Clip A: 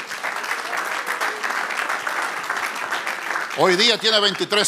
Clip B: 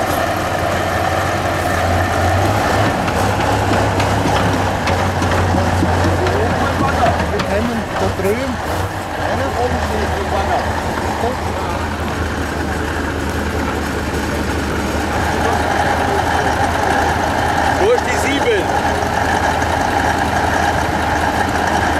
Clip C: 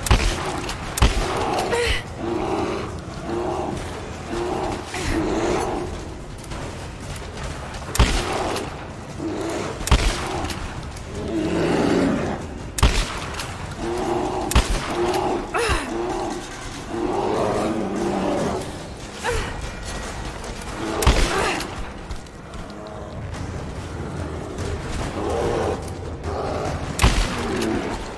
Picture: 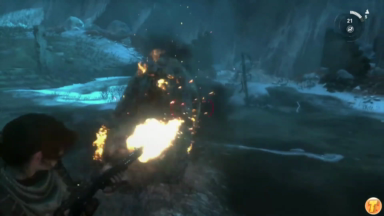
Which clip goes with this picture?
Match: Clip C